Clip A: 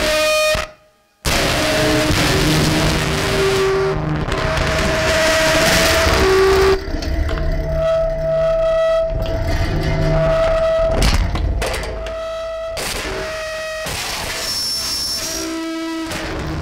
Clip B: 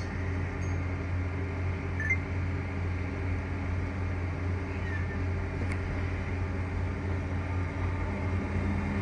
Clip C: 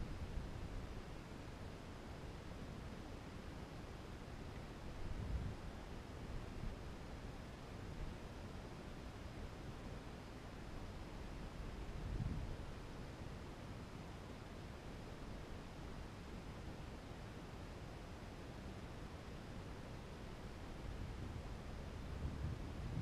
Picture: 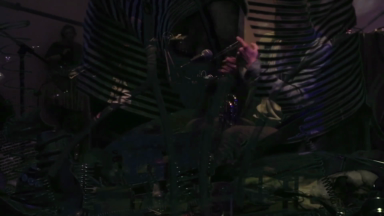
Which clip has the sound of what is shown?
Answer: A